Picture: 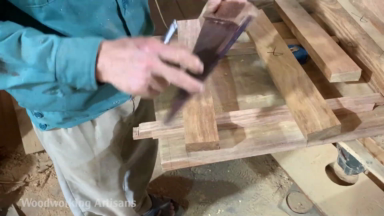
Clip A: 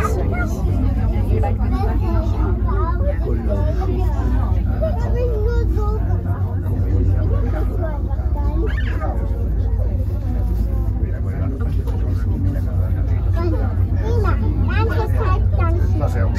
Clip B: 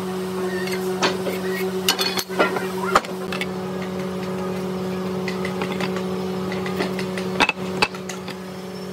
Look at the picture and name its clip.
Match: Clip B